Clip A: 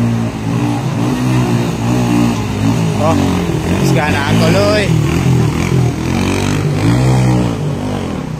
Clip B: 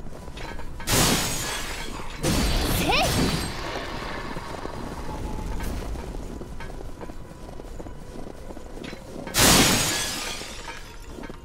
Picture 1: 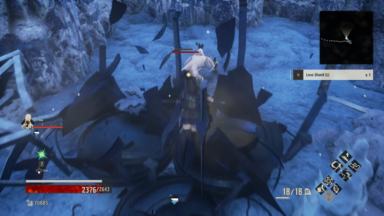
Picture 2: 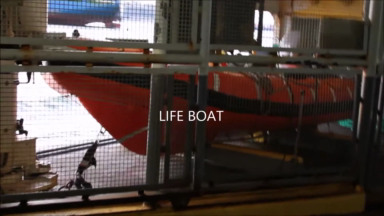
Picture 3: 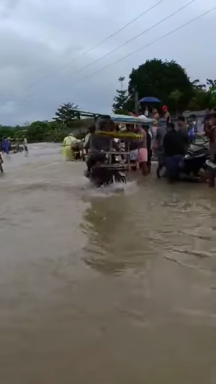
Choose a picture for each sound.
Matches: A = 3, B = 1